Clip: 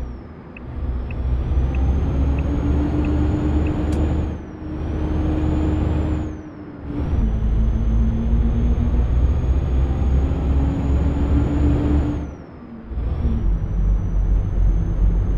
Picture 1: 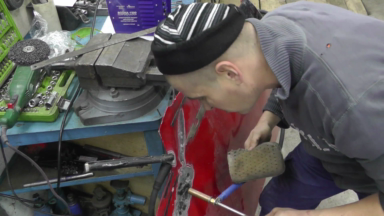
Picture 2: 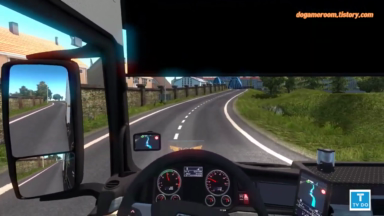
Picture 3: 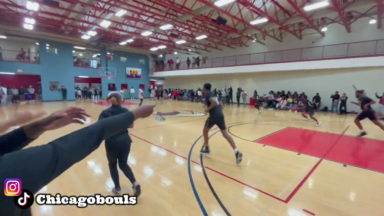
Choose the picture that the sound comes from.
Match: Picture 2